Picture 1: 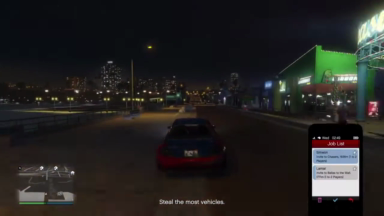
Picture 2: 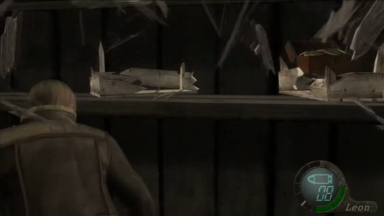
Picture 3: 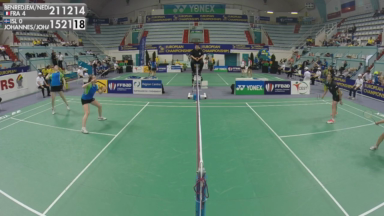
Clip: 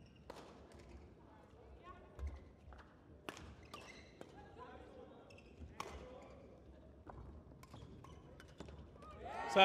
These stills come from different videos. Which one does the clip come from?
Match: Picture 3